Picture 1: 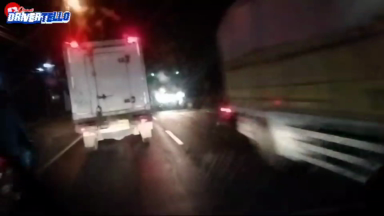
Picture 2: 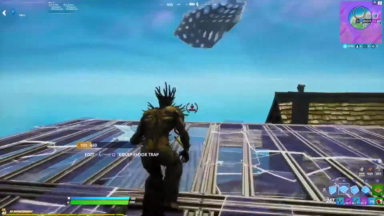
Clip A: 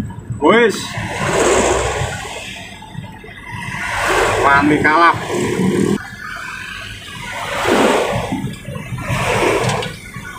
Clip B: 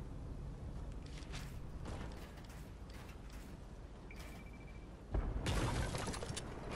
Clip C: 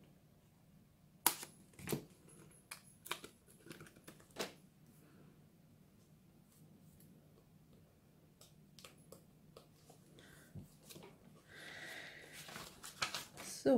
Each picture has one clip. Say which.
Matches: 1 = A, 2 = B